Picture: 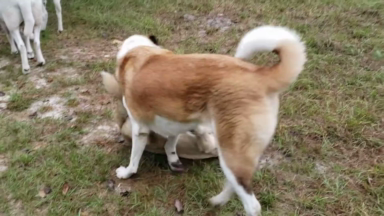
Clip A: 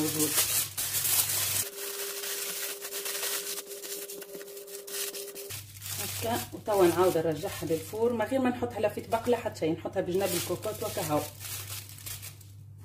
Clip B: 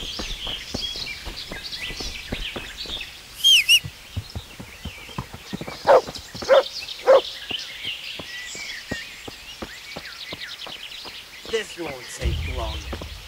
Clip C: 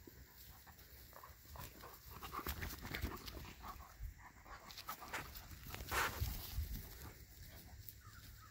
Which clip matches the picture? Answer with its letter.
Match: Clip C